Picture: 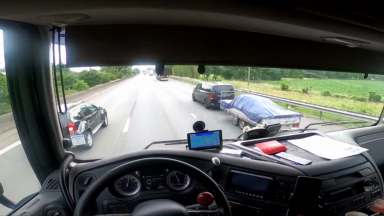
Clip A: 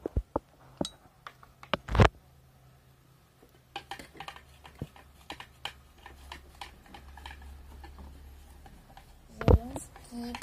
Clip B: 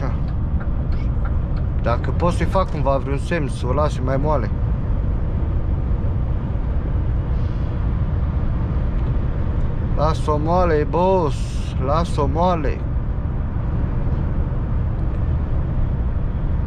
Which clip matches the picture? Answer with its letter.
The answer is B